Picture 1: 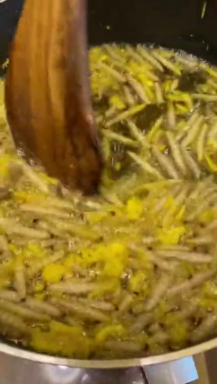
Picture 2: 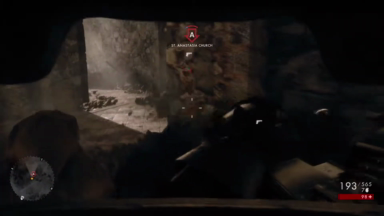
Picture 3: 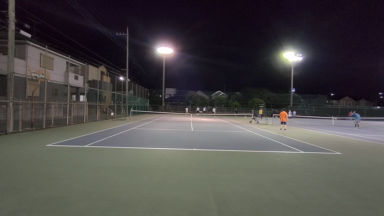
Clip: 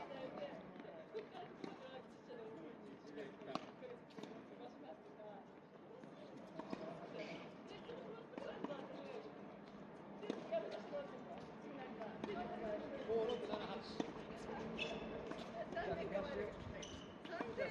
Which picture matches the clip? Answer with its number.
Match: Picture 3